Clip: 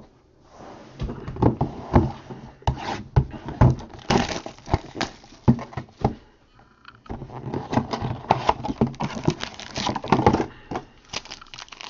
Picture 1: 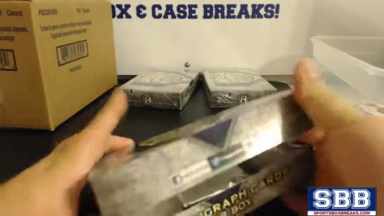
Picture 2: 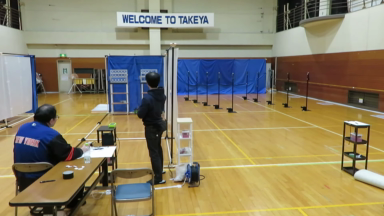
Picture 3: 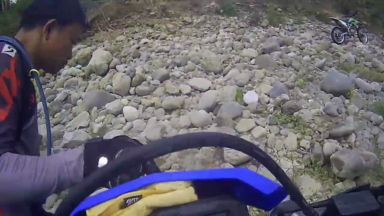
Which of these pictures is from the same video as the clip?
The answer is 1